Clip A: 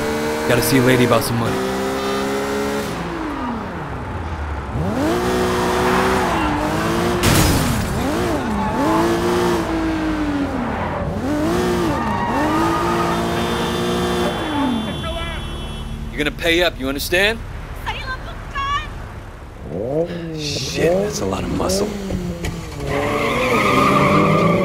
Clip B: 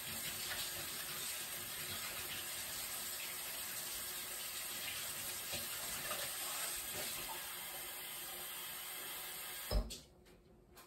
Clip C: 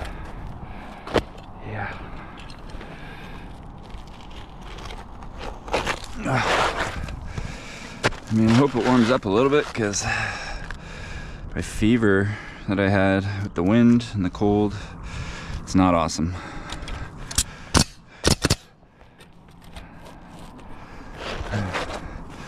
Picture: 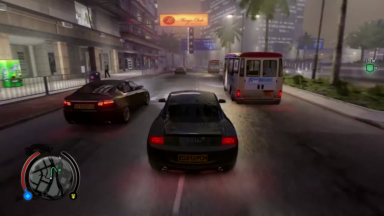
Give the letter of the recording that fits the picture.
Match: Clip A